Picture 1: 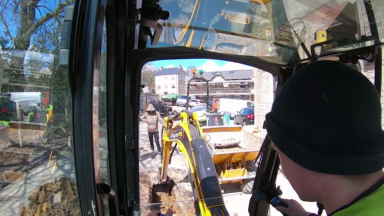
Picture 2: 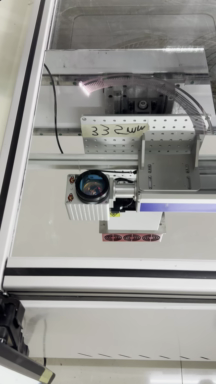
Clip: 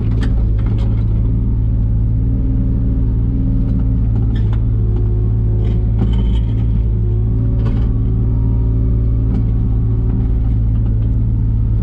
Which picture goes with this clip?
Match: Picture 1